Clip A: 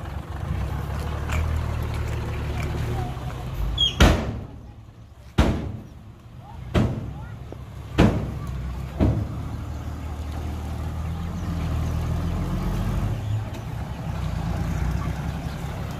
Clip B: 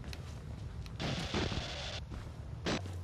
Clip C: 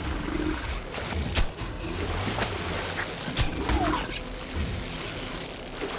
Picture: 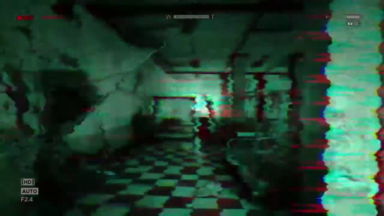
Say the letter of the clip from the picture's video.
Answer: B